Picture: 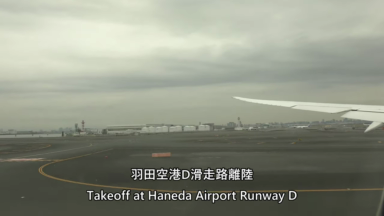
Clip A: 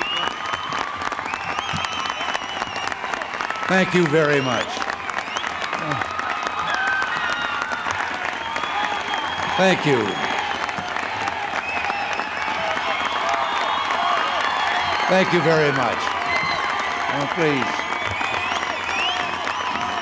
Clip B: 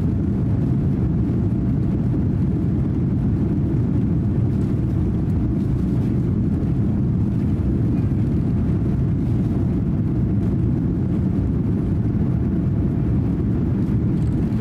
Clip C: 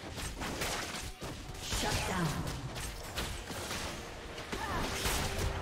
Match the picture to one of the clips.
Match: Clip B